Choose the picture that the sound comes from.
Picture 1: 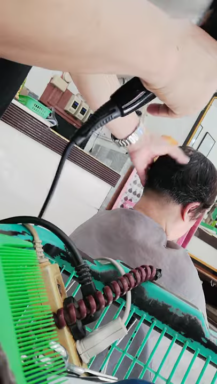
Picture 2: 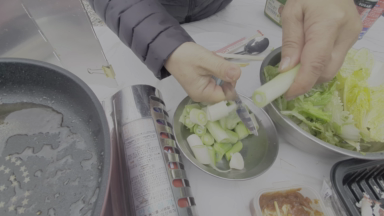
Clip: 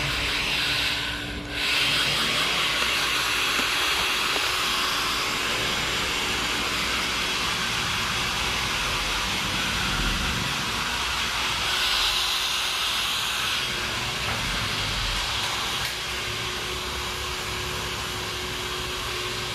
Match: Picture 1